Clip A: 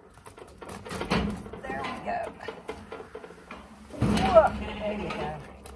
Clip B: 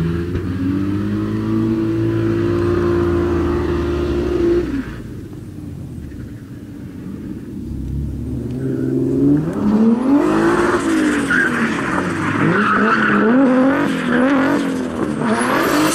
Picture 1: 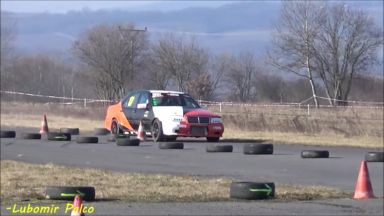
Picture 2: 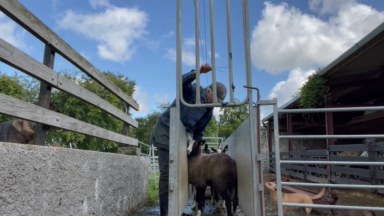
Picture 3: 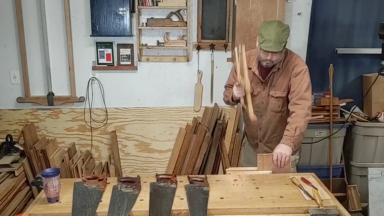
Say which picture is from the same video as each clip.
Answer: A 2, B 1